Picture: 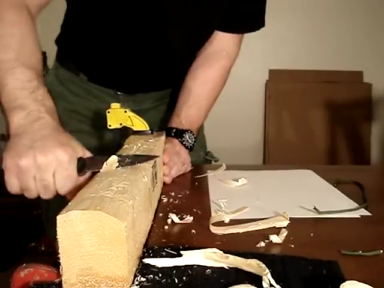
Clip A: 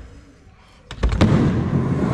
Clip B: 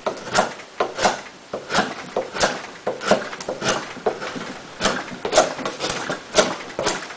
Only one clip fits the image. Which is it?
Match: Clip B